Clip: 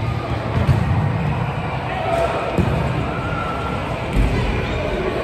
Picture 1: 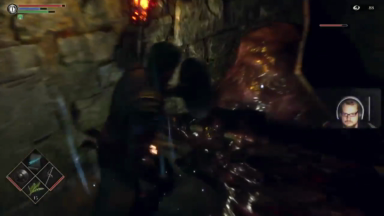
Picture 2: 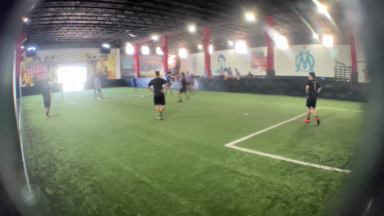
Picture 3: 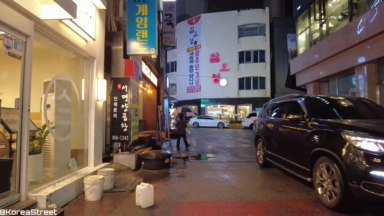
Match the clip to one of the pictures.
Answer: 2